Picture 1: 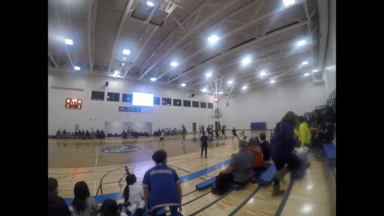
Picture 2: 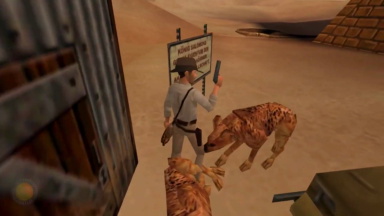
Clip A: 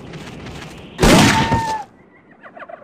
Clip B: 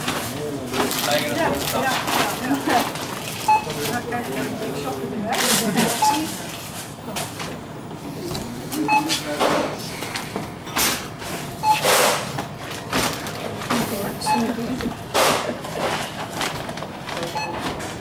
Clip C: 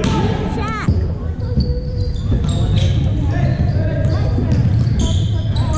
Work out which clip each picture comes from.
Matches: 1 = C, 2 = A